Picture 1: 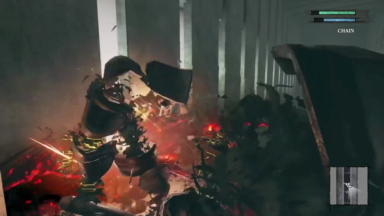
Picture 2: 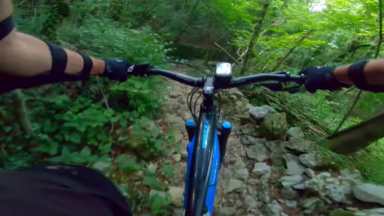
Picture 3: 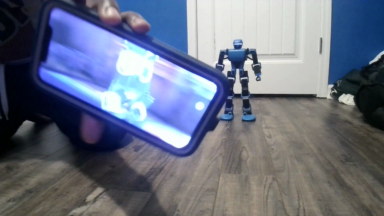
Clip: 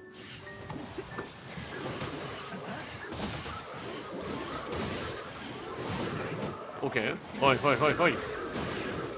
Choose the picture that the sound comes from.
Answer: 1